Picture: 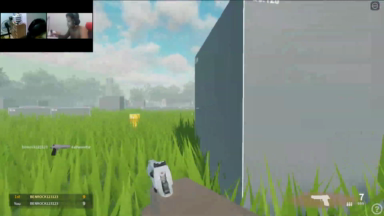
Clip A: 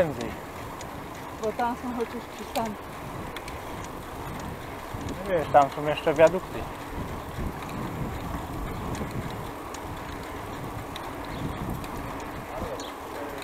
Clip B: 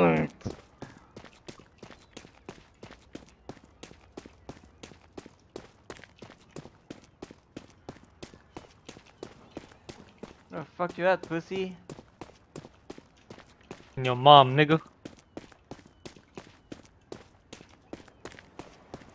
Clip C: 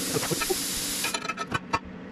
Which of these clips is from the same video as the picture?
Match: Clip B